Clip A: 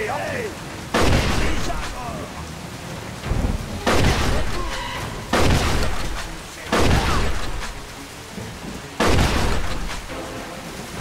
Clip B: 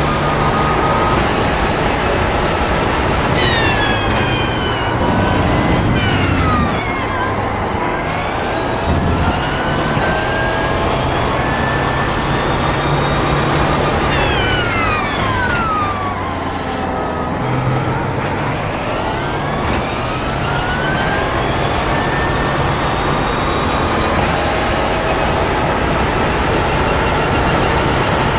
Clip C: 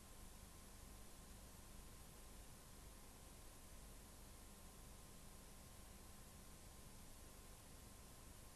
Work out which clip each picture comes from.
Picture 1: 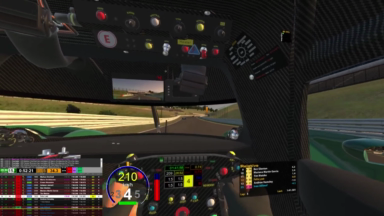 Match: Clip B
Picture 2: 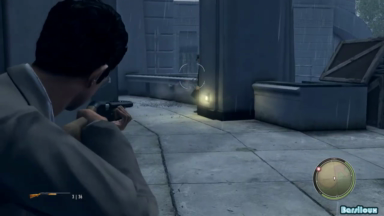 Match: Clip A